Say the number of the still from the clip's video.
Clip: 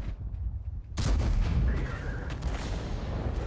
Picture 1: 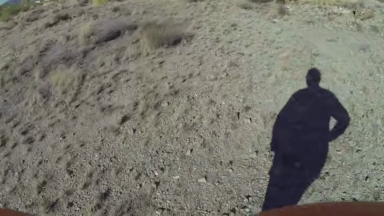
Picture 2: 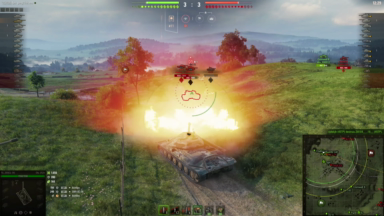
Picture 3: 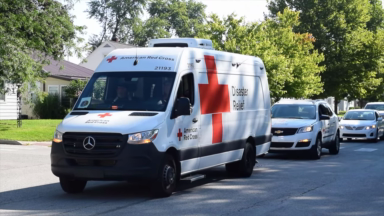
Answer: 2